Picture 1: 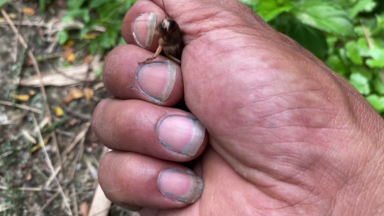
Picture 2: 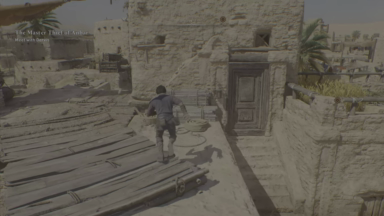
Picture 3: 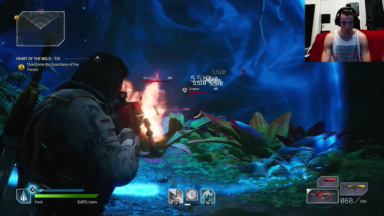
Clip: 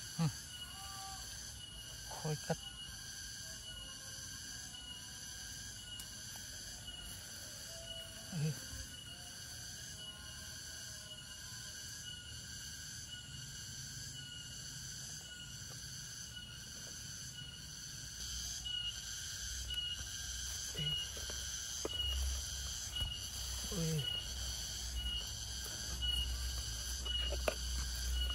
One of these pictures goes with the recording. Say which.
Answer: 1